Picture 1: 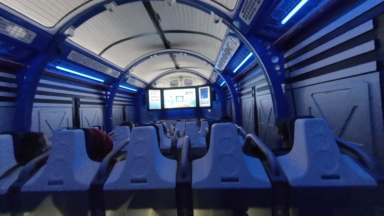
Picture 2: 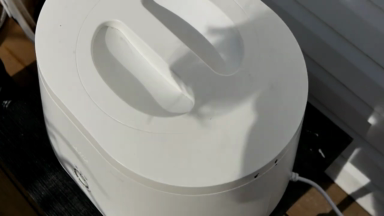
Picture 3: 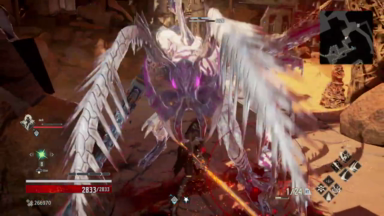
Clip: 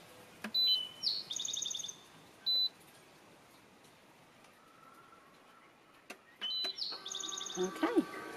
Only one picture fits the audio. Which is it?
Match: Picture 2